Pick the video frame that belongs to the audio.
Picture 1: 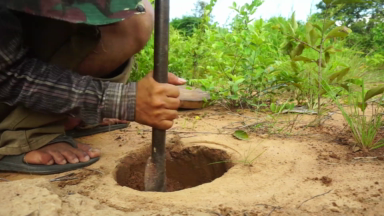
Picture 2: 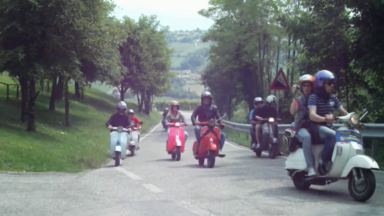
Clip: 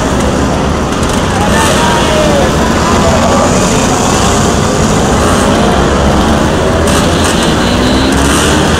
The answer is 2